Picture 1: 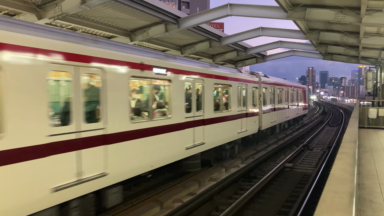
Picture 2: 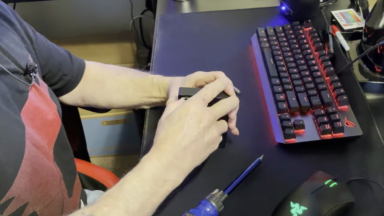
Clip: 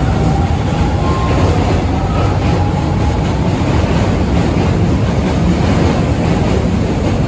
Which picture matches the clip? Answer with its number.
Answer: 1